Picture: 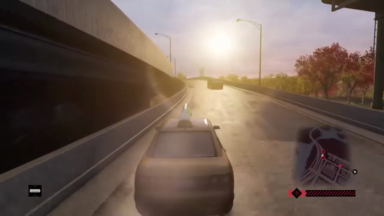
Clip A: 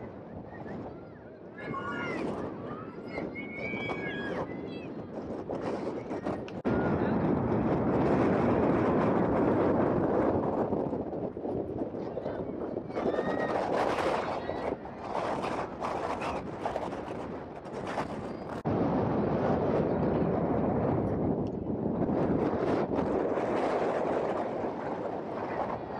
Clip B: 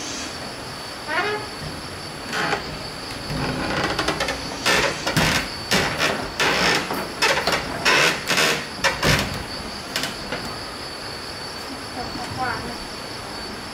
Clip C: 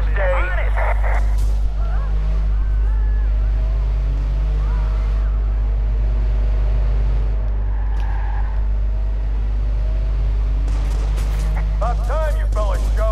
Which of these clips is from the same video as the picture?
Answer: C